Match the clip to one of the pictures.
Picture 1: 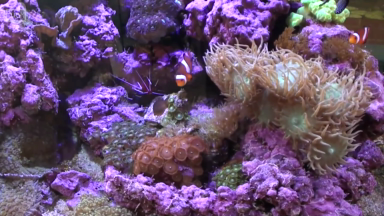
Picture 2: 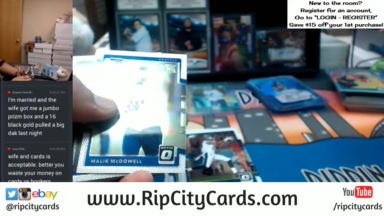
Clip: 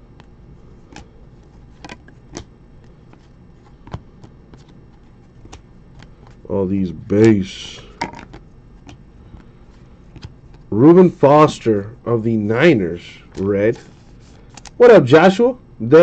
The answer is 2